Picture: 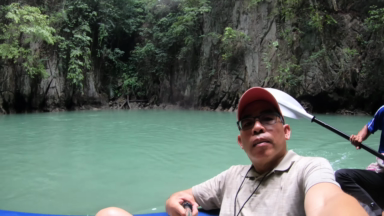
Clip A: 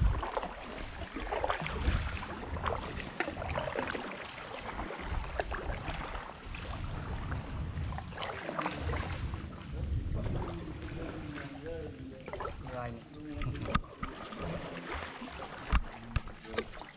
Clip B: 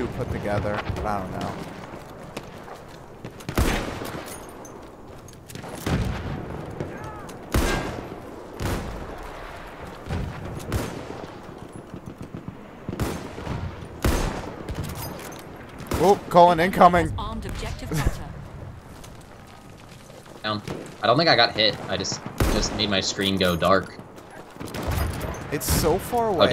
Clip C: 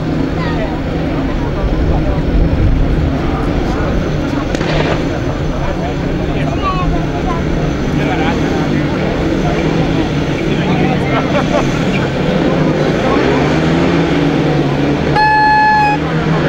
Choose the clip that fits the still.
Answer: A